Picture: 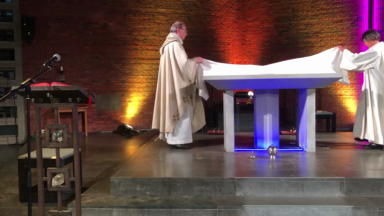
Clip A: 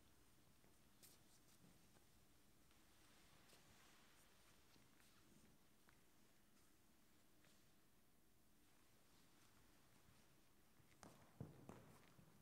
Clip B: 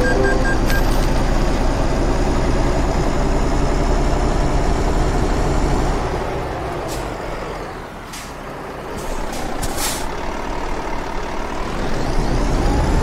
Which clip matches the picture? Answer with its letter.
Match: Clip A